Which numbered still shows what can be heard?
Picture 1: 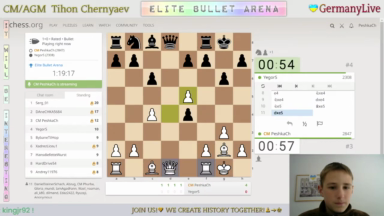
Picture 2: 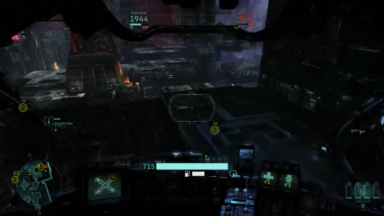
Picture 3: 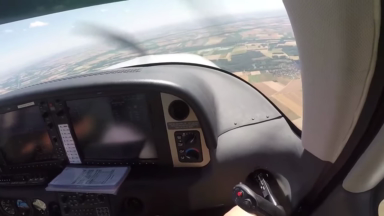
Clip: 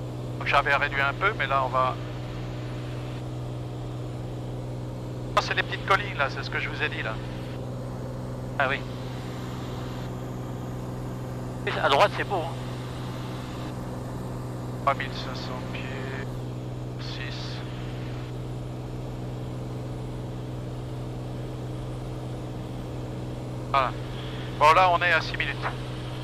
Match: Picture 3